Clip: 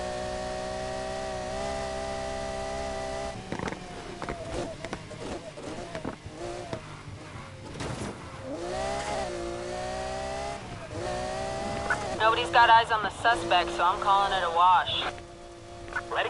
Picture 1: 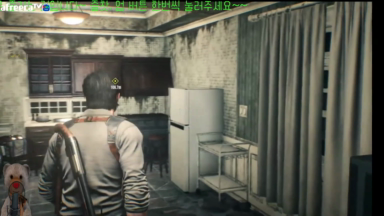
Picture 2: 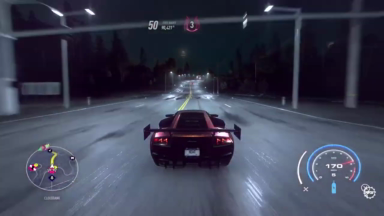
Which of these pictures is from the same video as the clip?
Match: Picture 2